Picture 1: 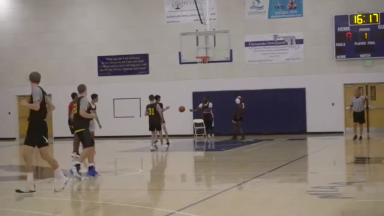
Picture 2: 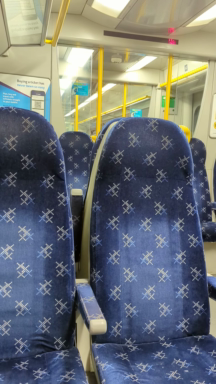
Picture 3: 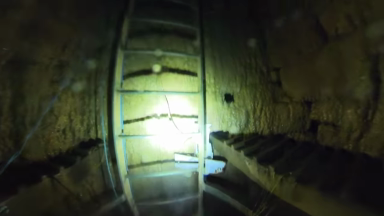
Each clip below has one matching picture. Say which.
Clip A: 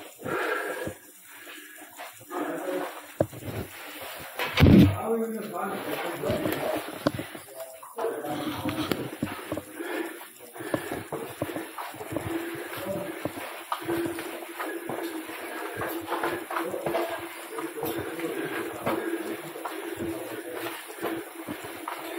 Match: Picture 3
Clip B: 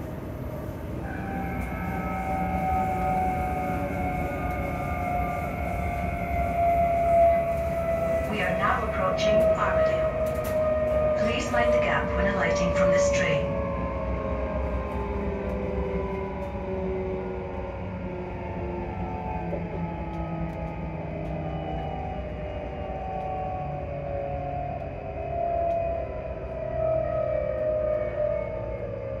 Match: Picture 2